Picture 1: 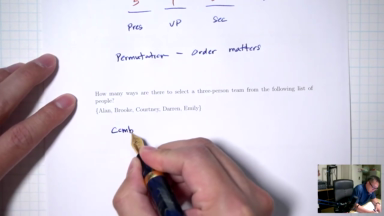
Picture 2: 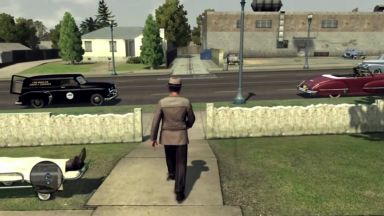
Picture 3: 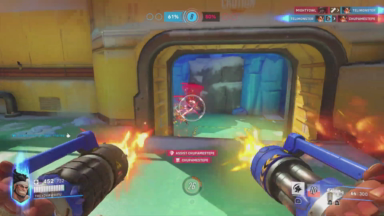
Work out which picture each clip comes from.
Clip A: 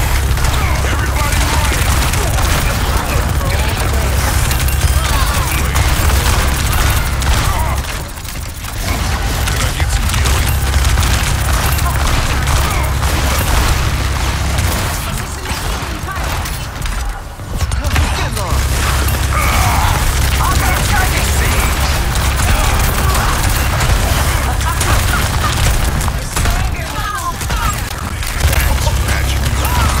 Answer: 3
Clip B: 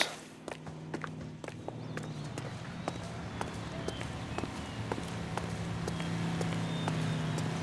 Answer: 2